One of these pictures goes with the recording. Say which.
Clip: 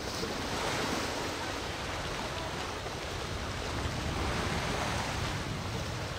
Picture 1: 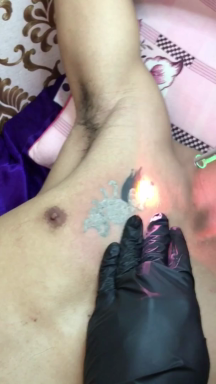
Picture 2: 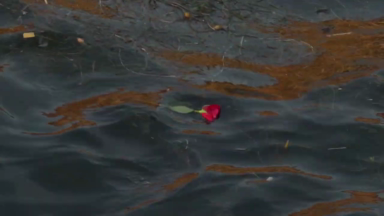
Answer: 2